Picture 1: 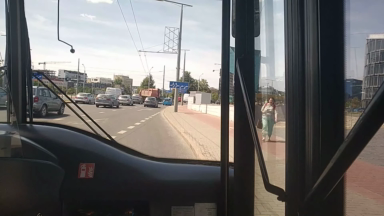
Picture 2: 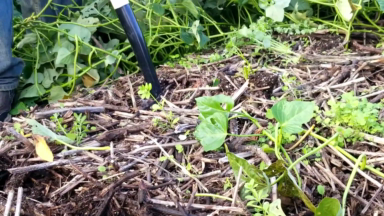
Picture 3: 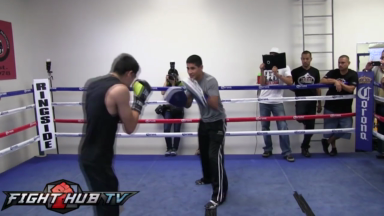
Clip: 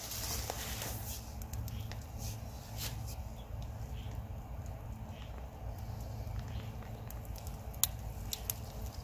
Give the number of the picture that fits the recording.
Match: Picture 2